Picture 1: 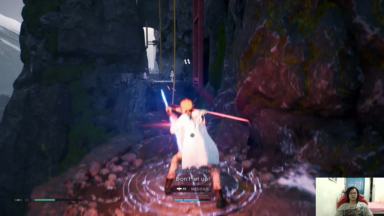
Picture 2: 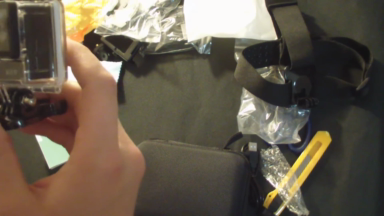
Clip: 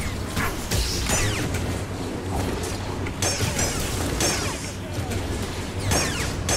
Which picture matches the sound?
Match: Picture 1